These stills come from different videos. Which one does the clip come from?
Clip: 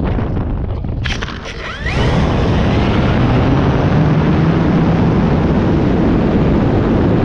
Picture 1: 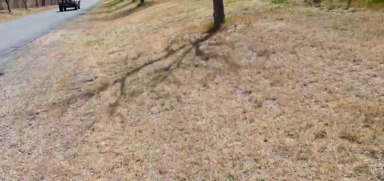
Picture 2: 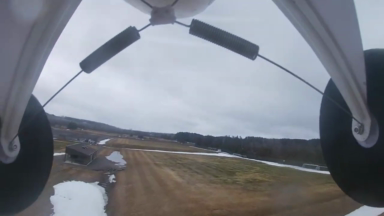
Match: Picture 2